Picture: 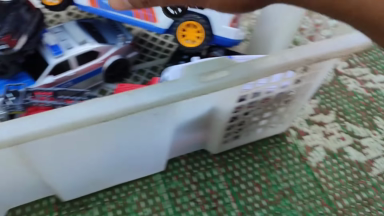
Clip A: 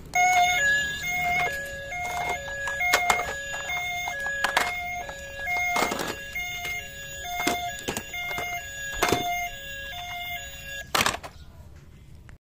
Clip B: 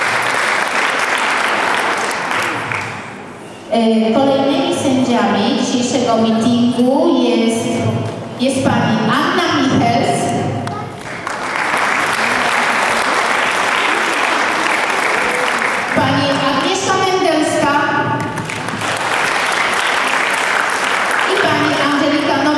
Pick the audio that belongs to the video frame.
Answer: A